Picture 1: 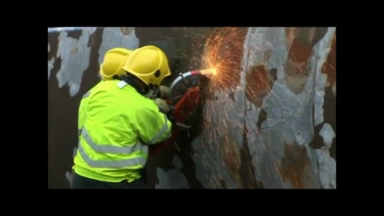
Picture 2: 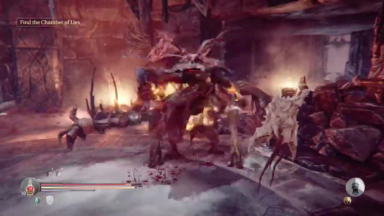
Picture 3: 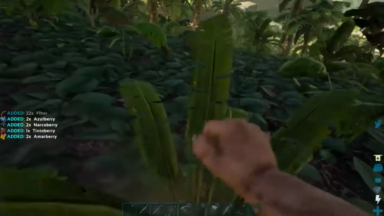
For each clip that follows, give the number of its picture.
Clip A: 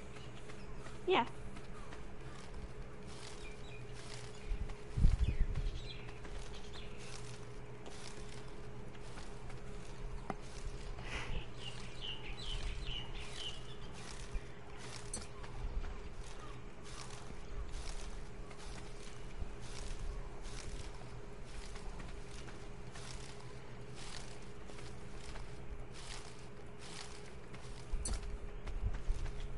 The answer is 3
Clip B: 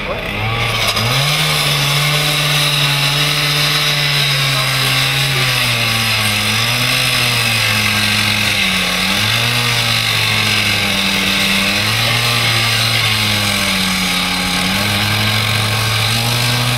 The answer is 1